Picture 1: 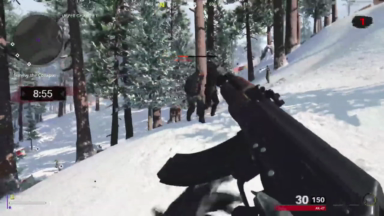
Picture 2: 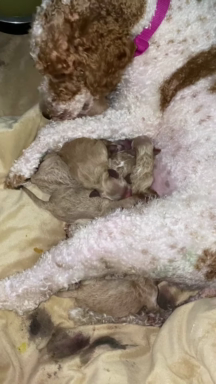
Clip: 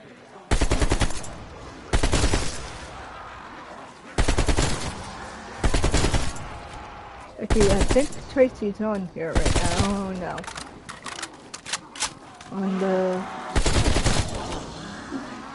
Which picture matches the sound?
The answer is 1